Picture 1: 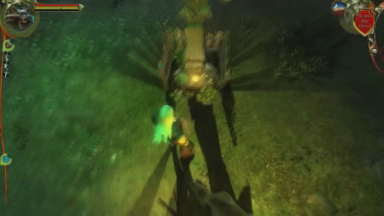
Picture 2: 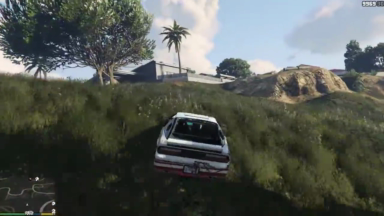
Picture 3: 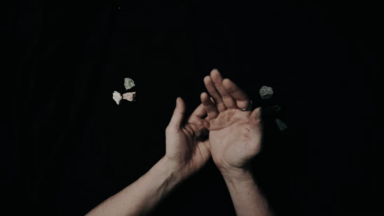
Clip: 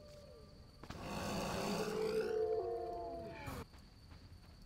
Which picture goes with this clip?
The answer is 1